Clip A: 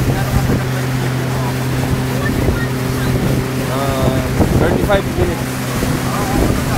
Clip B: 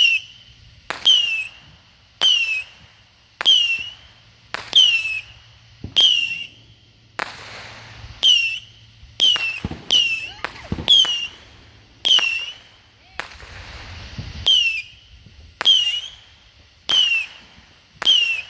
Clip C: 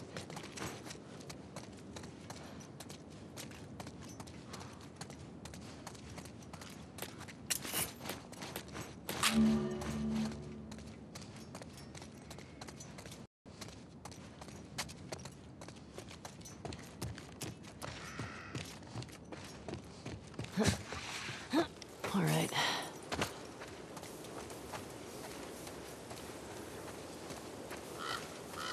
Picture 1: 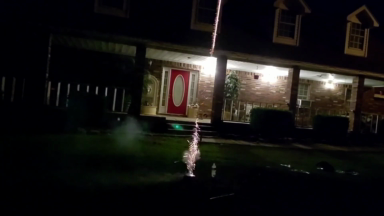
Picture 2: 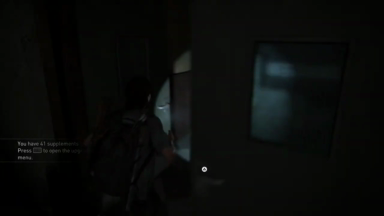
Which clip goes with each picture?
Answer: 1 B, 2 C